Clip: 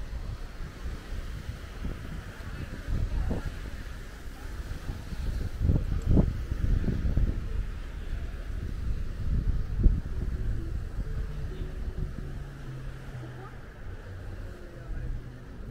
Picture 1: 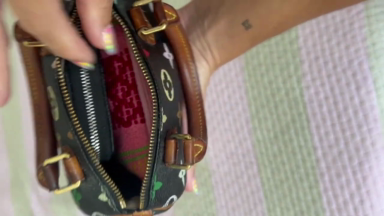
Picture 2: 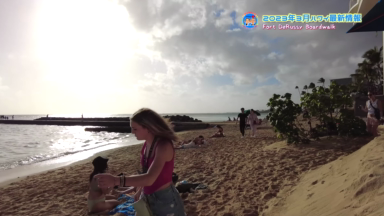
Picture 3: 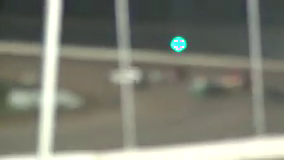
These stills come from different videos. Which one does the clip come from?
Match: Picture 2